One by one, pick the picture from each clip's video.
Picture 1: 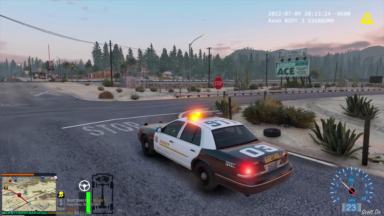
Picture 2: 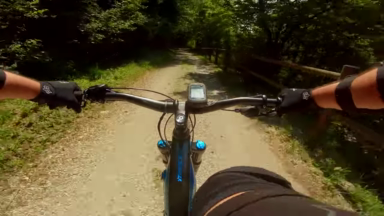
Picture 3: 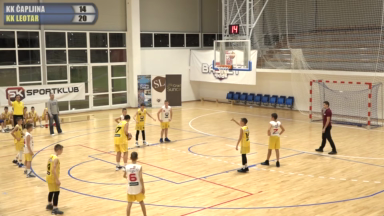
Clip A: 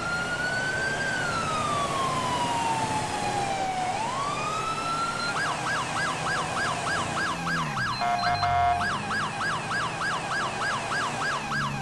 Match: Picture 1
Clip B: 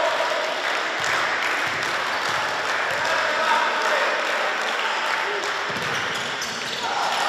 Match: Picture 3